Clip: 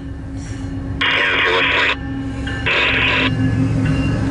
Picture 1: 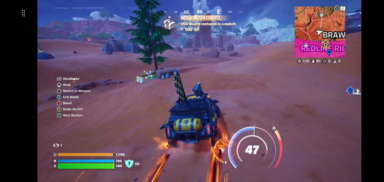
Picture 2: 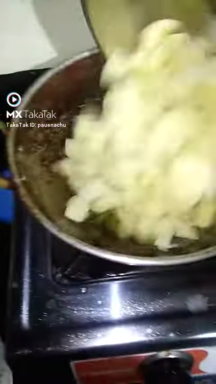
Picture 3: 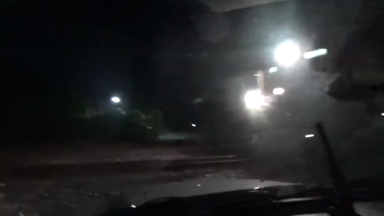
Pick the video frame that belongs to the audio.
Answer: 3